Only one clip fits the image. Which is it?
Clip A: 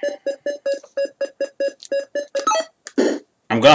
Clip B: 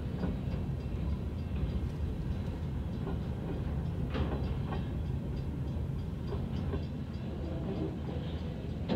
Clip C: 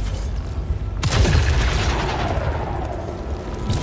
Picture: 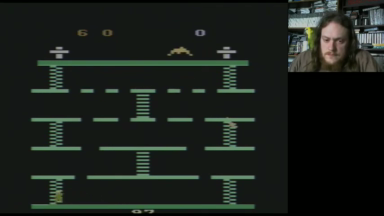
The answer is A